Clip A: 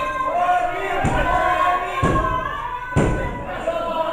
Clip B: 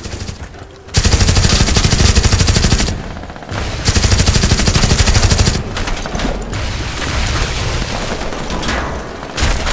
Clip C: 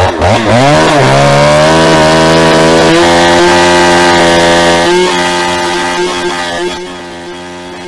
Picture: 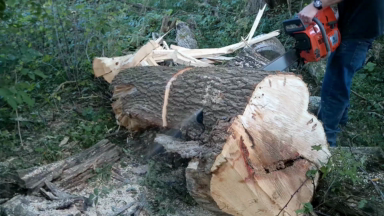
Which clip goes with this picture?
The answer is C